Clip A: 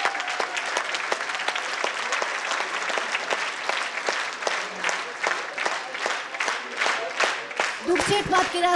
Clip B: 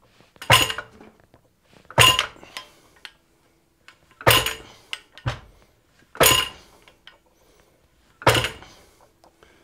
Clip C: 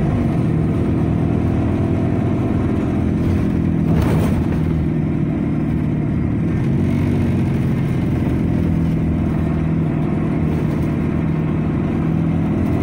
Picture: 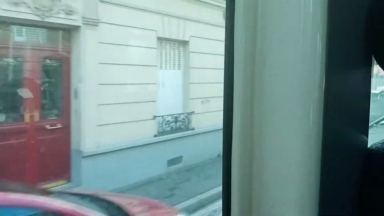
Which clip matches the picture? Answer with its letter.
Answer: C